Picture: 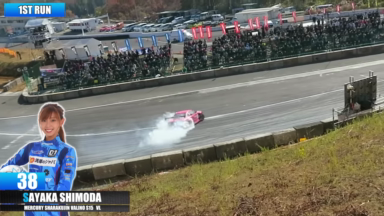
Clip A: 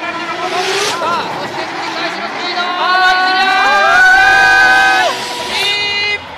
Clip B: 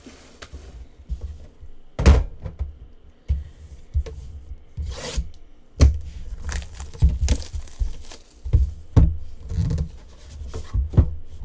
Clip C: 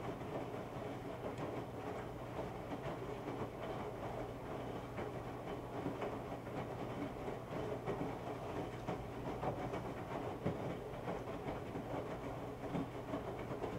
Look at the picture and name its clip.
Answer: A